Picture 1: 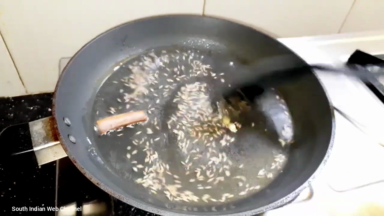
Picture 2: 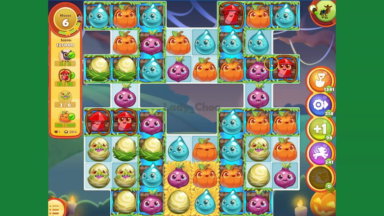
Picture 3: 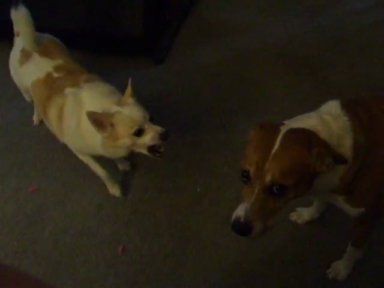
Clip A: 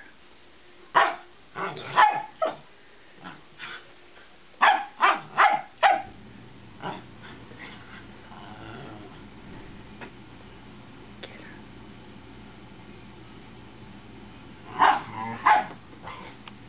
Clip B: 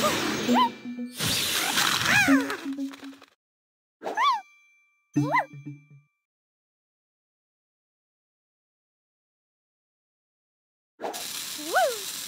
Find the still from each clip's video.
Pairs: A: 3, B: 2